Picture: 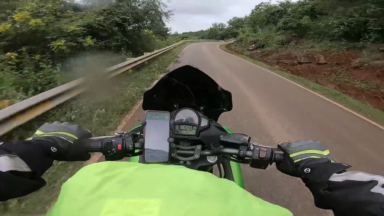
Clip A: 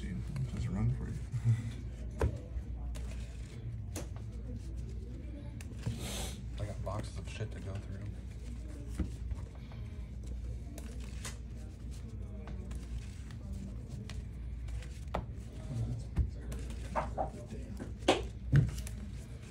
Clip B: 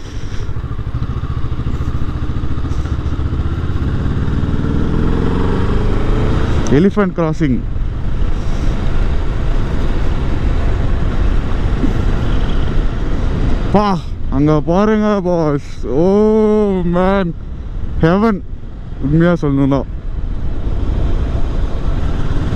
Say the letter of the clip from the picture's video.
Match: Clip B